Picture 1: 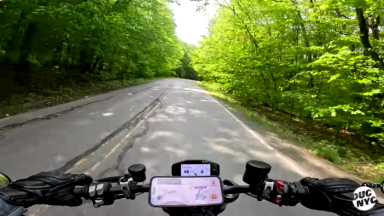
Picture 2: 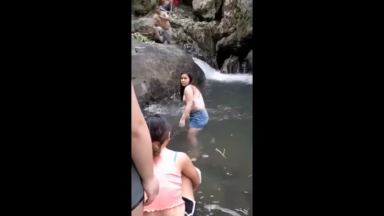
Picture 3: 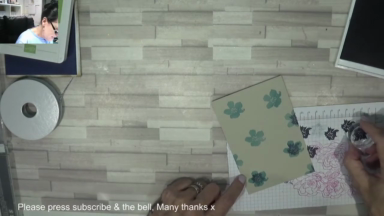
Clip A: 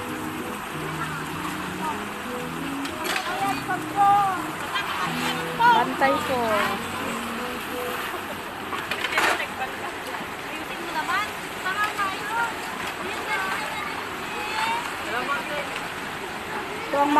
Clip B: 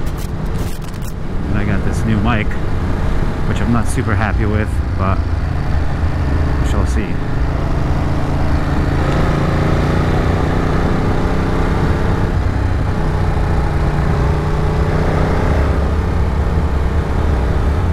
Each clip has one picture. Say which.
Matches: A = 2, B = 1